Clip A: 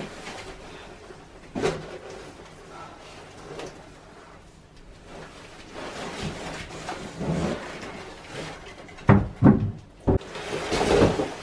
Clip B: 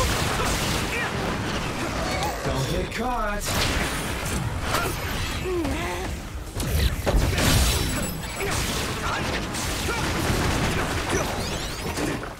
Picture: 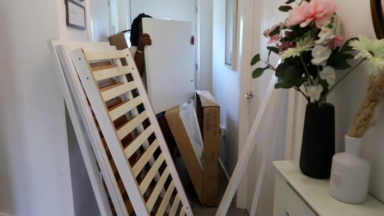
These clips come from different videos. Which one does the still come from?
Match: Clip A